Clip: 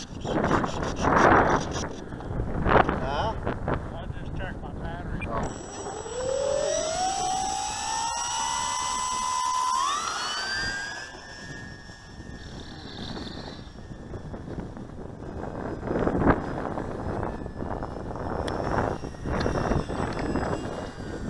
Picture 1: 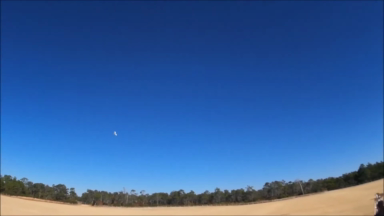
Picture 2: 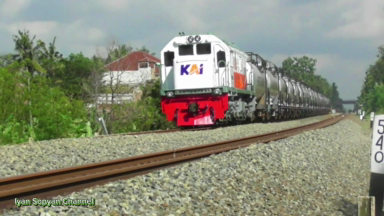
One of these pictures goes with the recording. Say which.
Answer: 1